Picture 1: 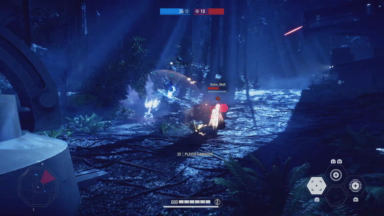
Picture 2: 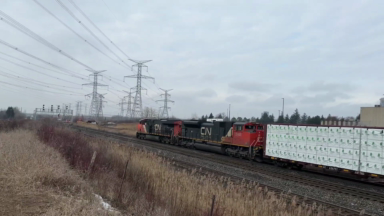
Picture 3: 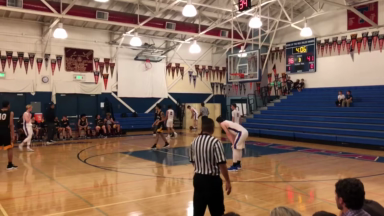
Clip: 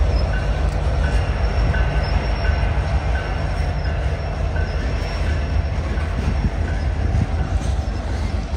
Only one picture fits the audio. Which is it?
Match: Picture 2